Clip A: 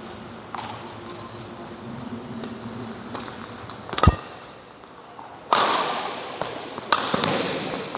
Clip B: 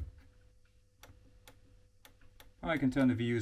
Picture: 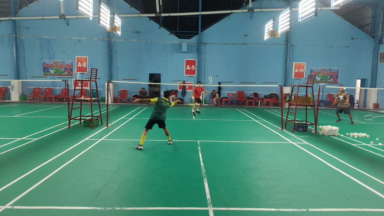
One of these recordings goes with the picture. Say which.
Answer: A